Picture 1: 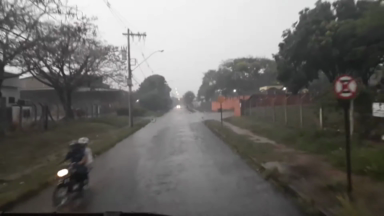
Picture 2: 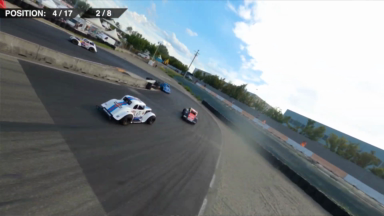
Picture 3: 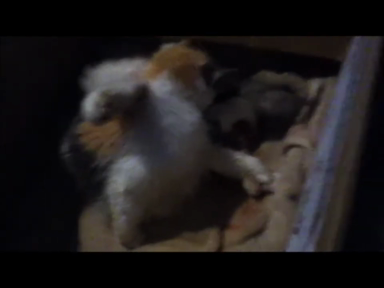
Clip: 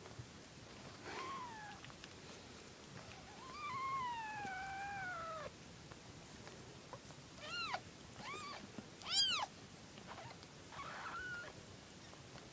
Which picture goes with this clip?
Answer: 3